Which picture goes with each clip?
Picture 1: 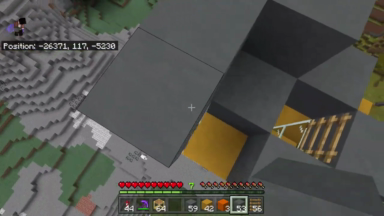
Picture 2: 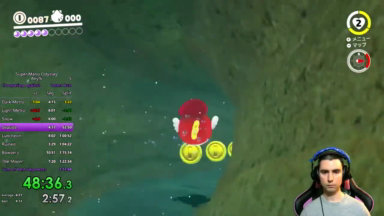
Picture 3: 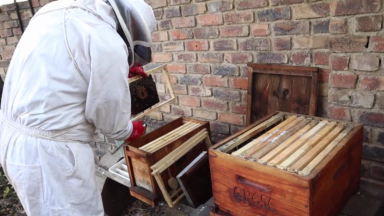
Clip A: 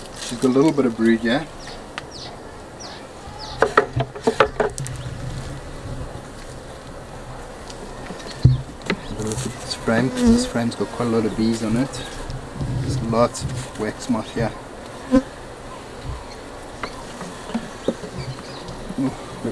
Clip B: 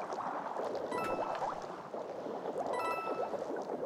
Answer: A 3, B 2